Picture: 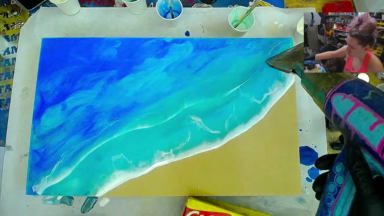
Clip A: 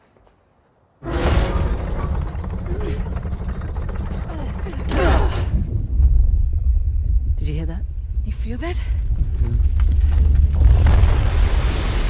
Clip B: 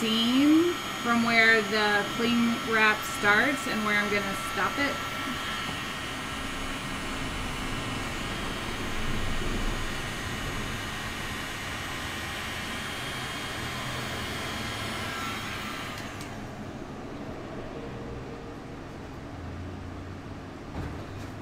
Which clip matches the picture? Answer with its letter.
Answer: B